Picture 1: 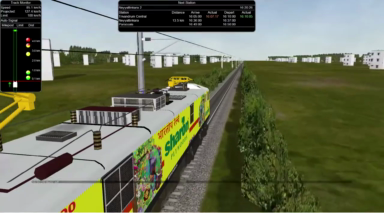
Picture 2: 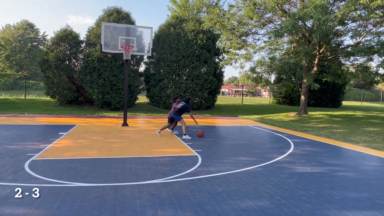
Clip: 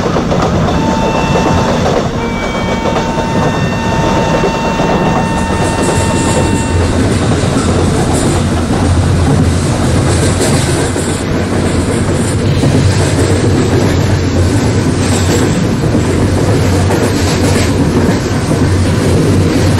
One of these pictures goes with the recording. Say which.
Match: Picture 1